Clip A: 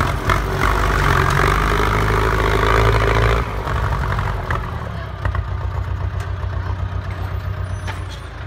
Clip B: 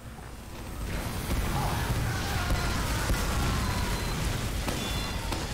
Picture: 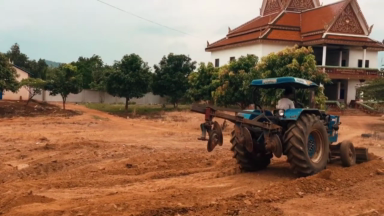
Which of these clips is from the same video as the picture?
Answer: A